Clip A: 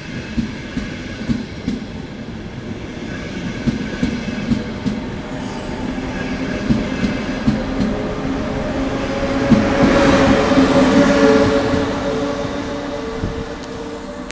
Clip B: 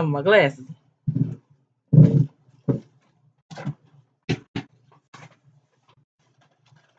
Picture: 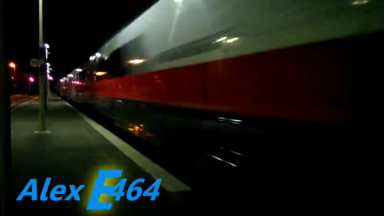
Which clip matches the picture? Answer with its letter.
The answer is A